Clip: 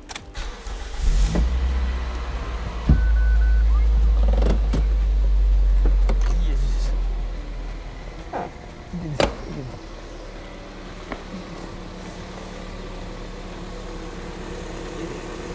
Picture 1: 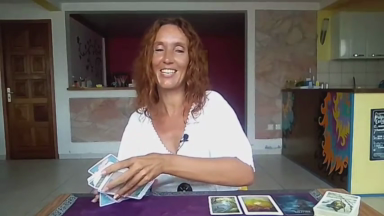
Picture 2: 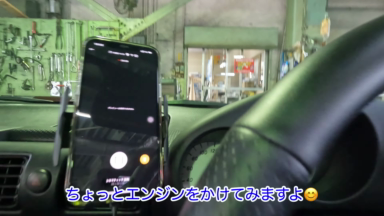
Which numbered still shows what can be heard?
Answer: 2